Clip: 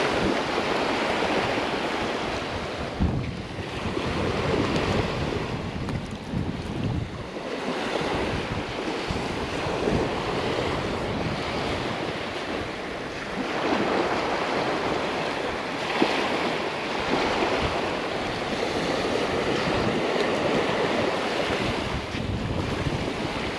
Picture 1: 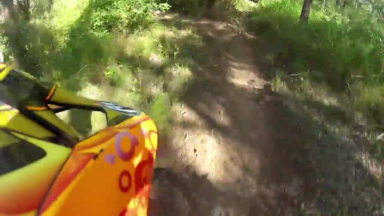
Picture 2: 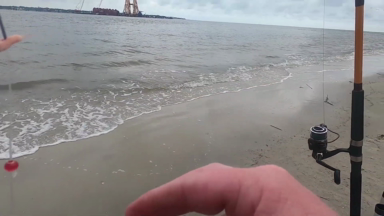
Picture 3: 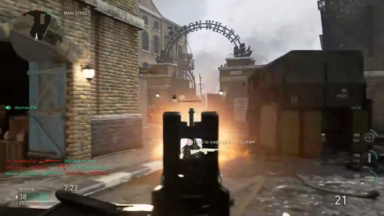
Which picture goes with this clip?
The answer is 2